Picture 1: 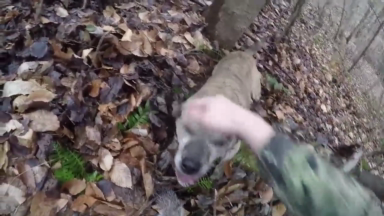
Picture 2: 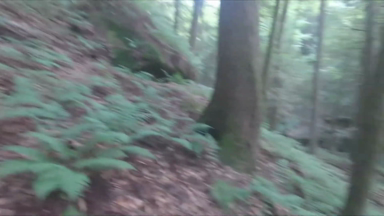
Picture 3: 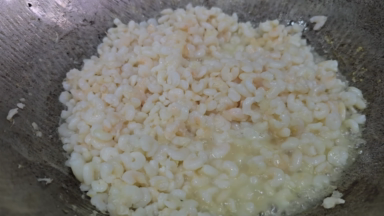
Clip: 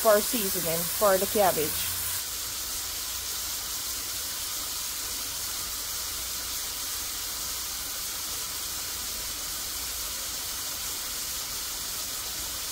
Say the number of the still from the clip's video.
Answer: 3